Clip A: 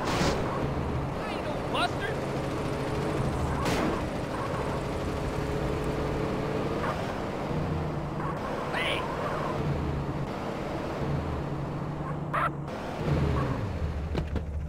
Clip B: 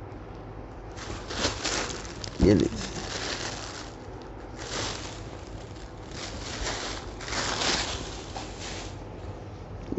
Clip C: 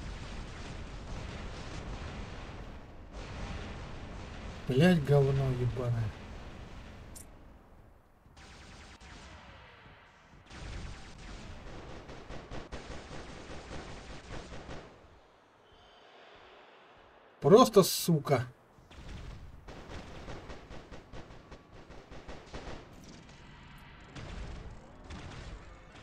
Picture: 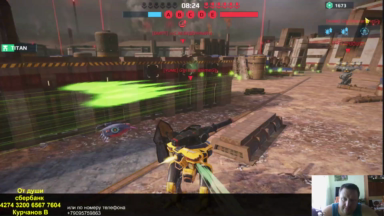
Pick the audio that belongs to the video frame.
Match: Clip C